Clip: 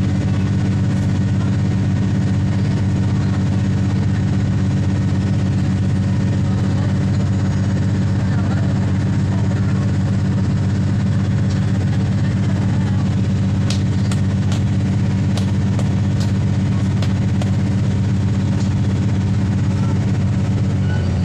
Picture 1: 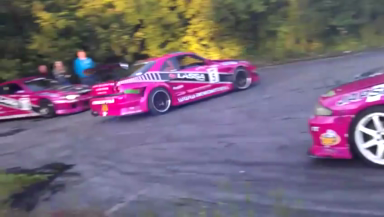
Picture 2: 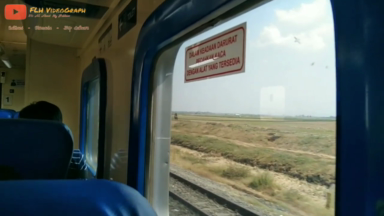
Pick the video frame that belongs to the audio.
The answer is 2